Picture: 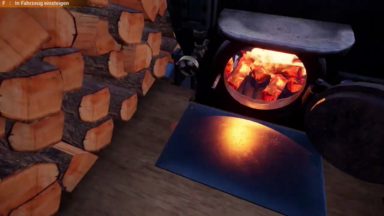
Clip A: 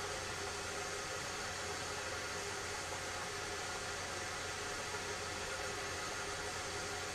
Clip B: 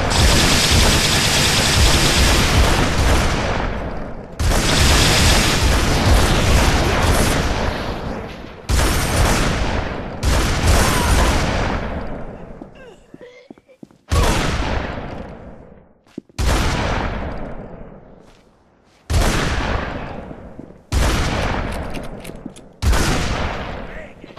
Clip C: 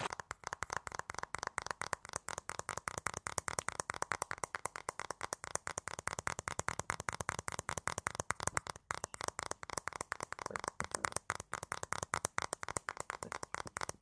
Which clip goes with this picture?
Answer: A